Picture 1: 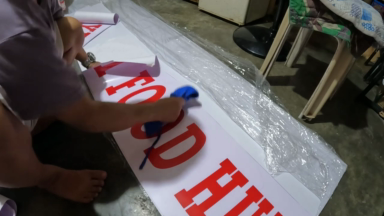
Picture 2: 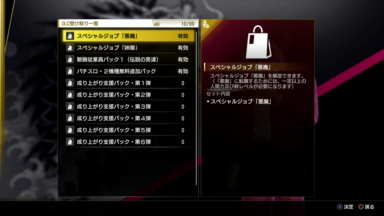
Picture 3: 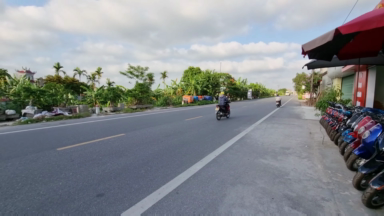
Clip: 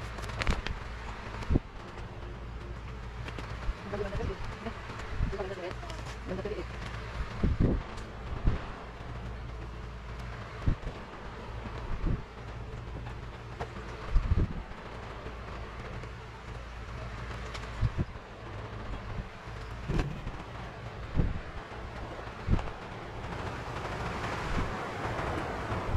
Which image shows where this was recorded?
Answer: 1